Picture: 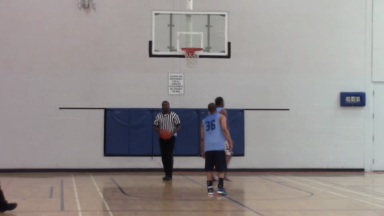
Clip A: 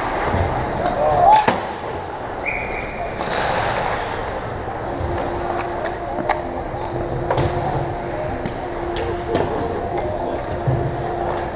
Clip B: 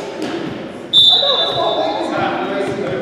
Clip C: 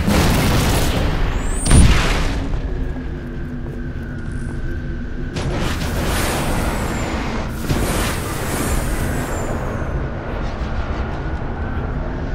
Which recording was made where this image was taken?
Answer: B